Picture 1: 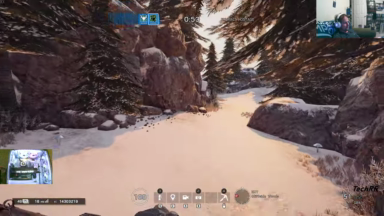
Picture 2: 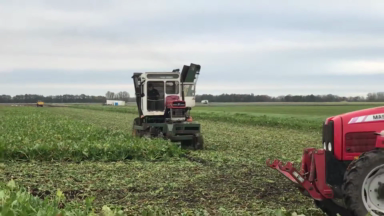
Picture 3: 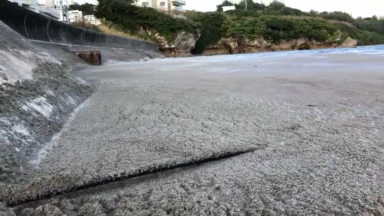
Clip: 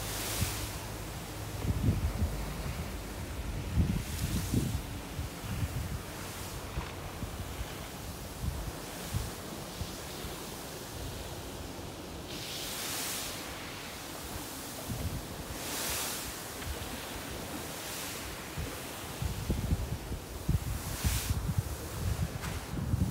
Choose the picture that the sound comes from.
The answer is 3